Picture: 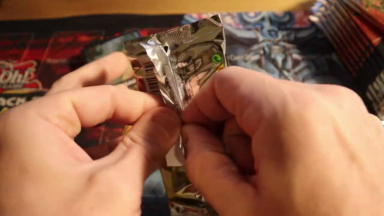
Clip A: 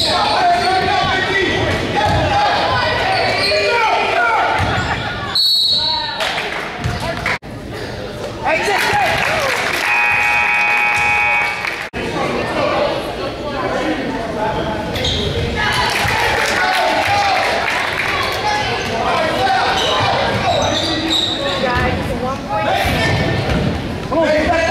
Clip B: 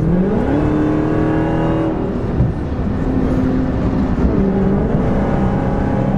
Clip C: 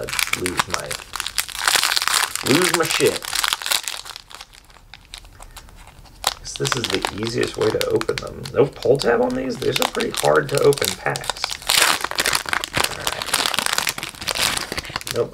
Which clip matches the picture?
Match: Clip C